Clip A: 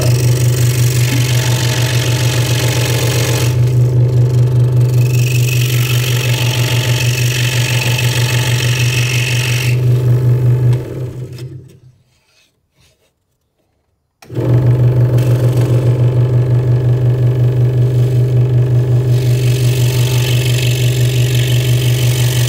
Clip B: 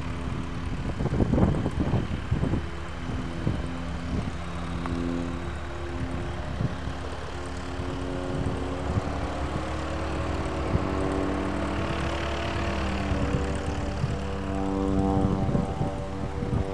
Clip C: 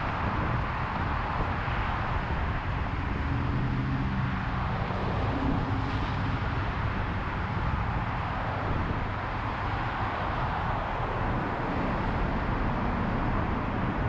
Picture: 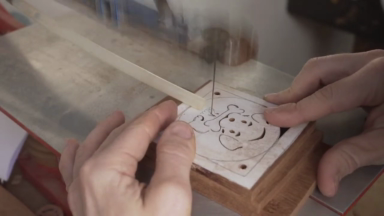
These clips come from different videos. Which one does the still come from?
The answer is A